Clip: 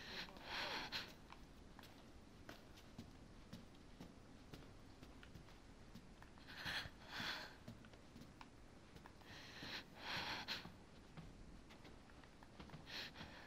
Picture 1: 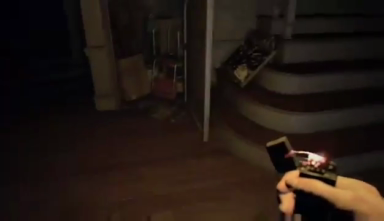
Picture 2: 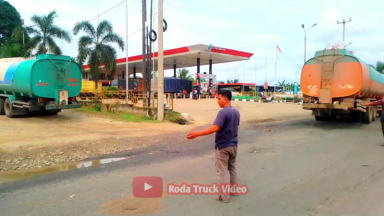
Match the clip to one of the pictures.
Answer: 1